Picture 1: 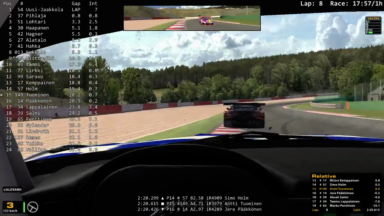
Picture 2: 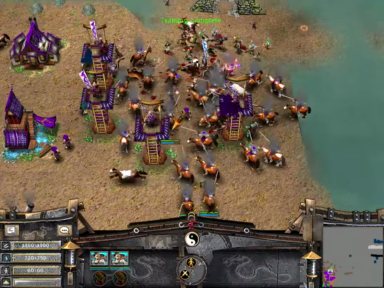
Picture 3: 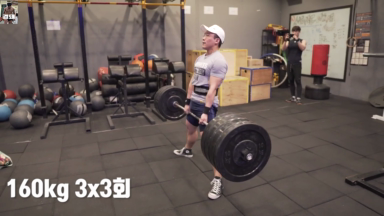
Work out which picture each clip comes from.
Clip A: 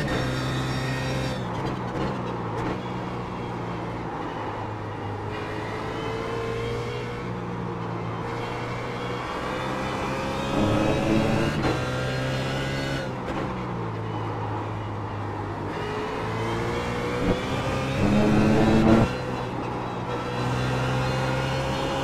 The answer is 1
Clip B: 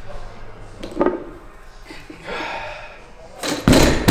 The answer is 3